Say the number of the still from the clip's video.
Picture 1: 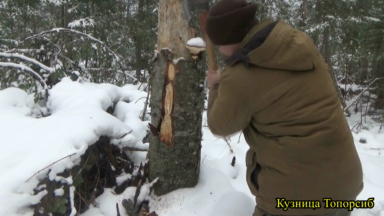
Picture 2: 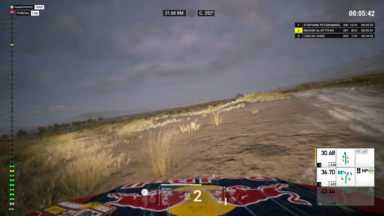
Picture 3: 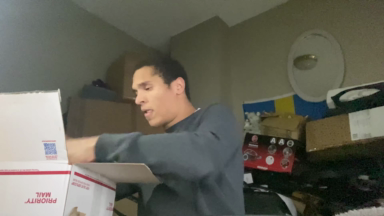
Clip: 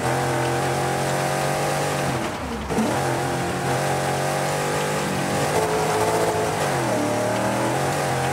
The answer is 2